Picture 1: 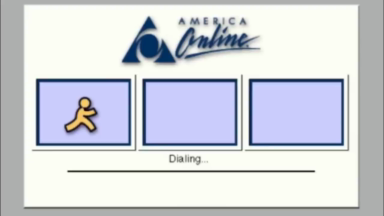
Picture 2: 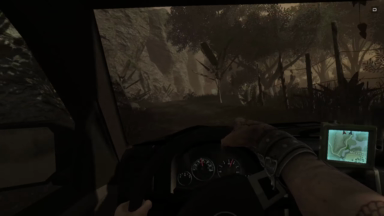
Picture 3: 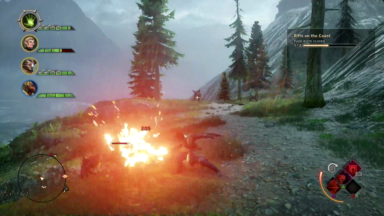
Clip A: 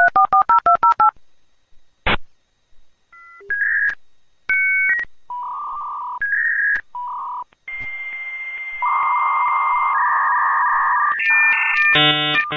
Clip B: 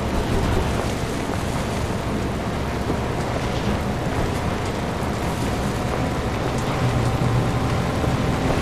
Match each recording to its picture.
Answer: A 1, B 2